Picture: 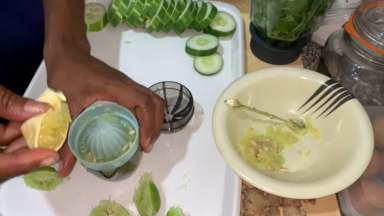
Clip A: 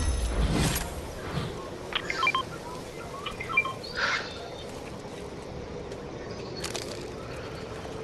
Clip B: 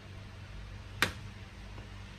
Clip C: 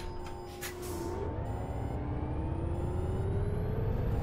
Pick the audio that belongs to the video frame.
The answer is B